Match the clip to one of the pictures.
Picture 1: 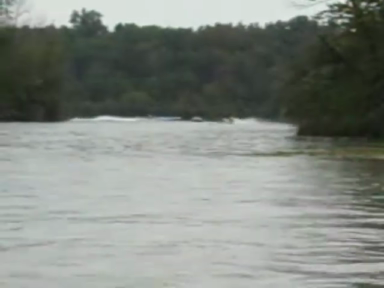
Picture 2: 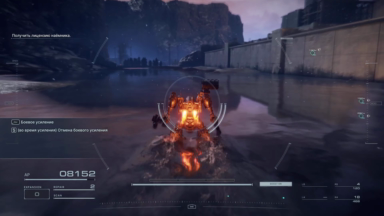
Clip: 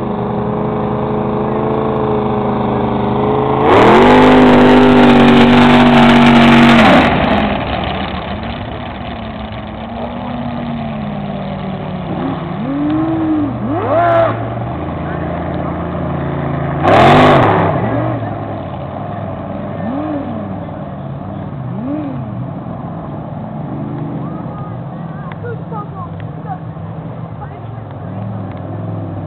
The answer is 1